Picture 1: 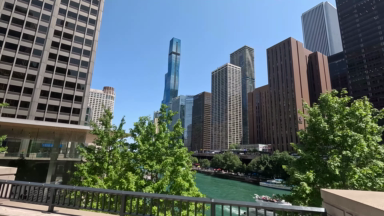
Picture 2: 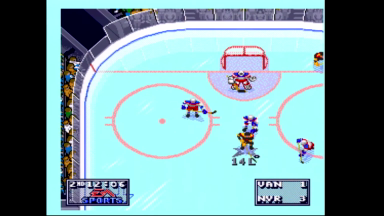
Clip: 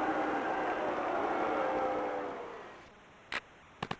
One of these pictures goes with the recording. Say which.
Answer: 2